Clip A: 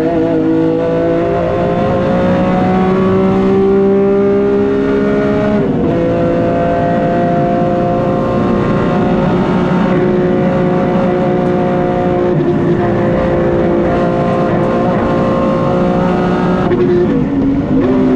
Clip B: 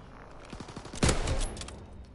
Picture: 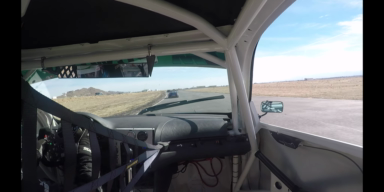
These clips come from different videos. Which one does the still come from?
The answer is A